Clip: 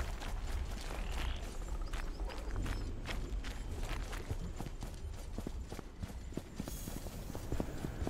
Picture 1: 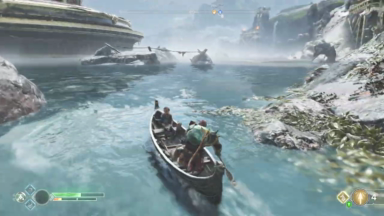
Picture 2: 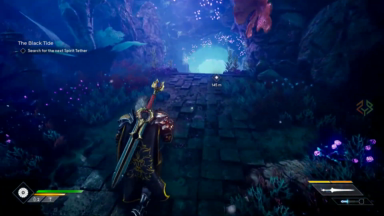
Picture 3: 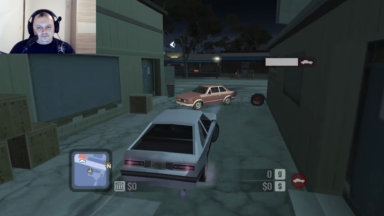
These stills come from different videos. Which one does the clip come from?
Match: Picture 2